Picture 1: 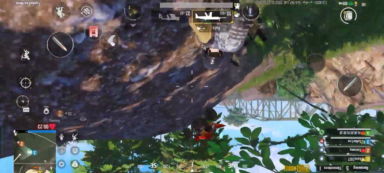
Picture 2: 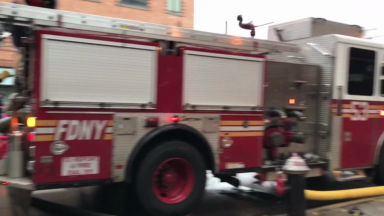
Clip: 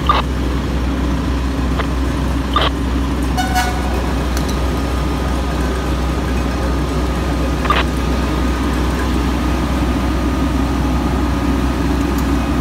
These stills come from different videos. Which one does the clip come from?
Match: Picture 2